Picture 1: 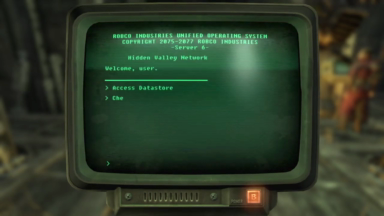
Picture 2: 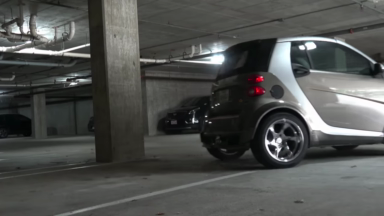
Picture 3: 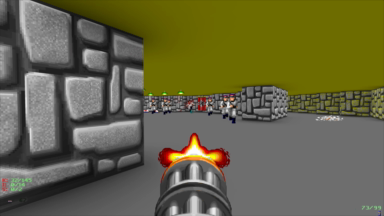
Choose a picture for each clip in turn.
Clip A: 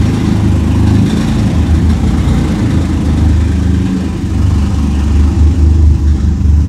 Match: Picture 2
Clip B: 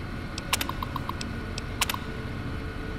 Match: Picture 1